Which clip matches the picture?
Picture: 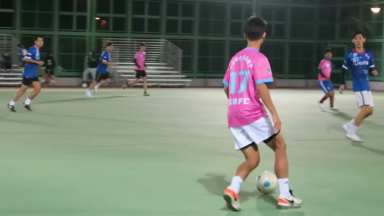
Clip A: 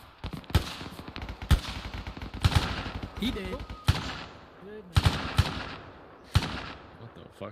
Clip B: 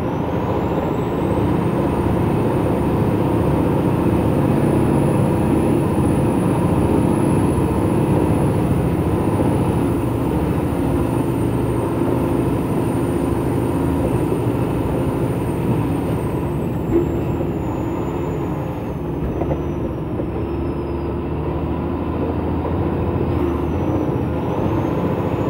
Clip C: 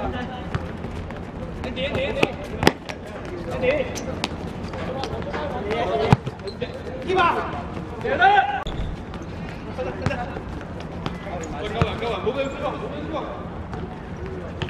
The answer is C